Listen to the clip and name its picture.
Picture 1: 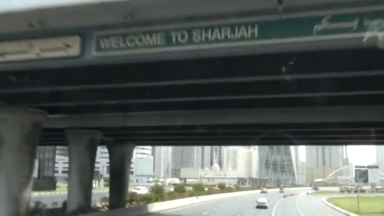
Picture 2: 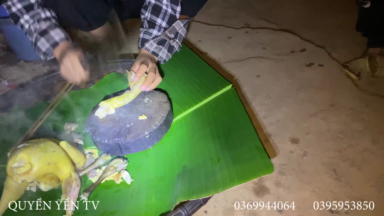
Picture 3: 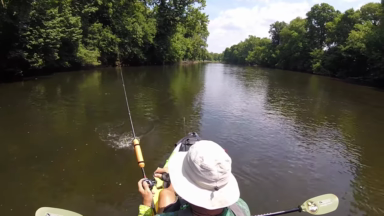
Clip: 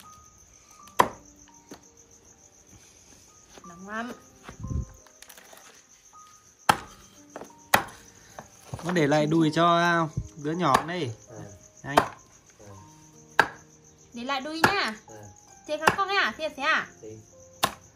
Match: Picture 2